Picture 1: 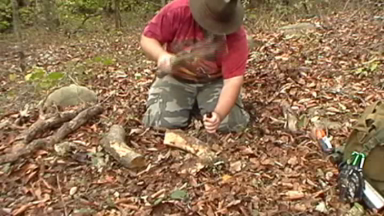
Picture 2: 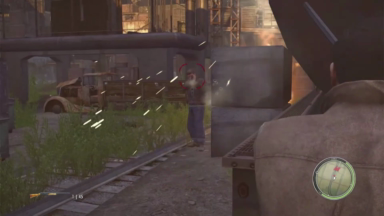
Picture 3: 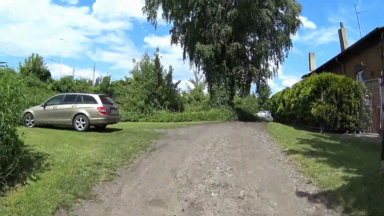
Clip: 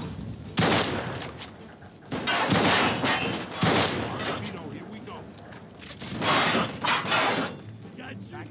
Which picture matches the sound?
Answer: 2